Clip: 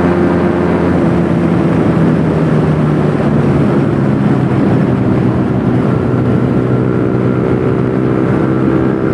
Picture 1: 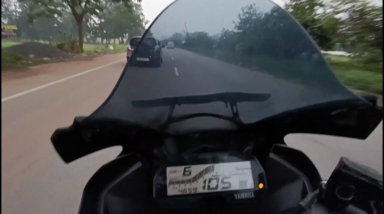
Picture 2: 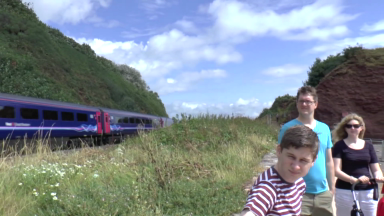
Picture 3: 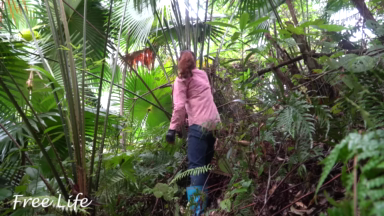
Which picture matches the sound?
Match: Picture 1